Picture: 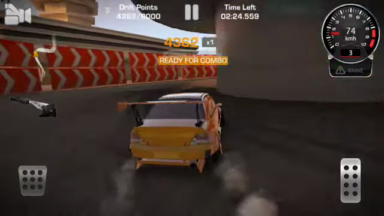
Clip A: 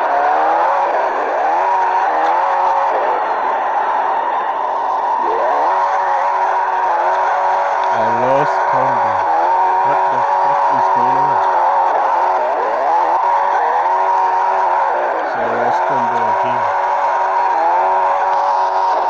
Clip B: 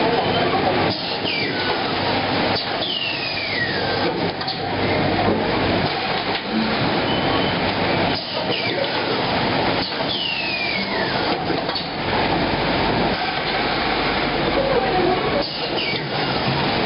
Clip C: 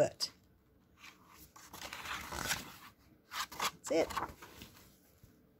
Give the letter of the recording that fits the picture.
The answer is A